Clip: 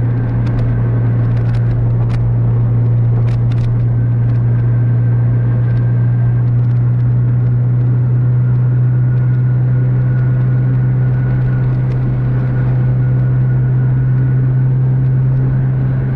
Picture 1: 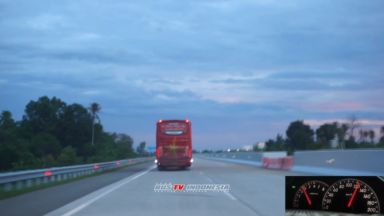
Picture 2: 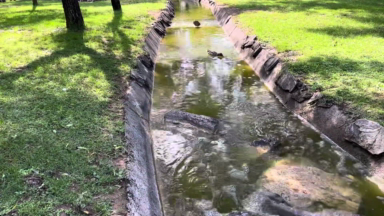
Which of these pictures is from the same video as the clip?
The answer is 1